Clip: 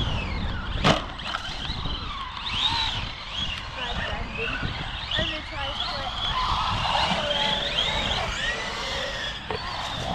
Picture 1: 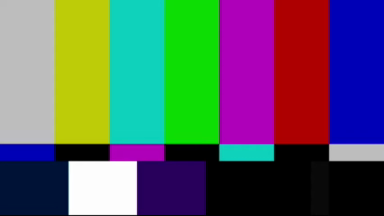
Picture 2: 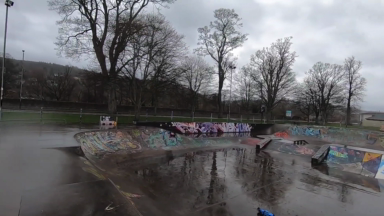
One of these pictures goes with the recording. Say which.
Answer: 2